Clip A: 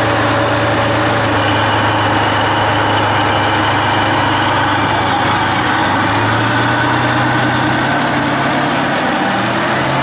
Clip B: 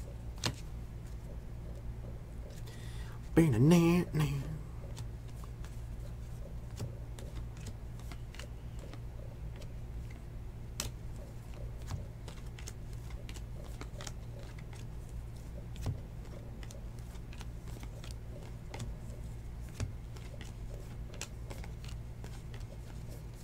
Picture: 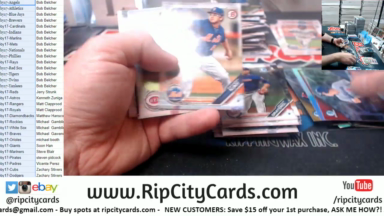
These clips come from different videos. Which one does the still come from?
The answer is B